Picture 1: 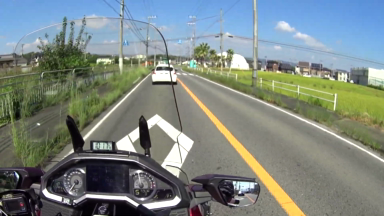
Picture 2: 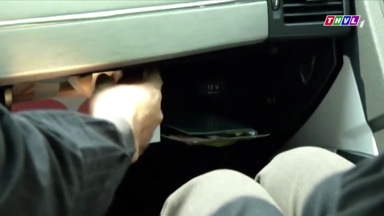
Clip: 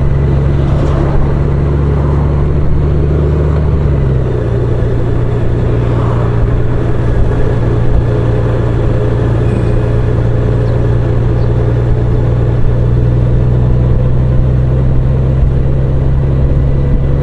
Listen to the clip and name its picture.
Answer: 1